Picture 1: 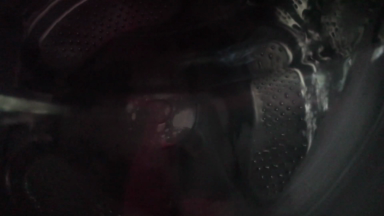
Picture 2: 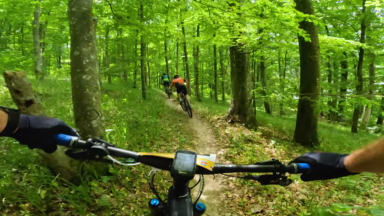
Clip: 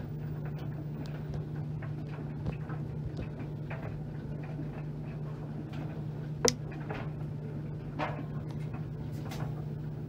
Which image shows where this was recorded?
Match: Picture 1